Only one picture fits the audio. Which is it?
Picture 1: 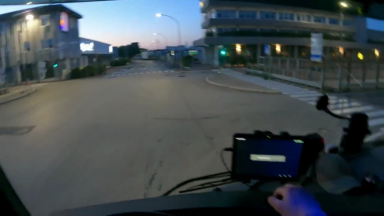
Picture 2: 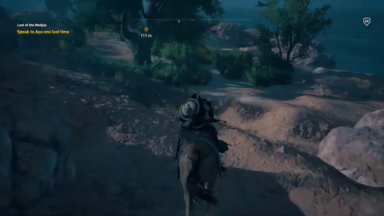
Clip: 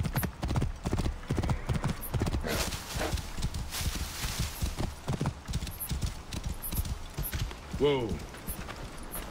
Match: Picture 2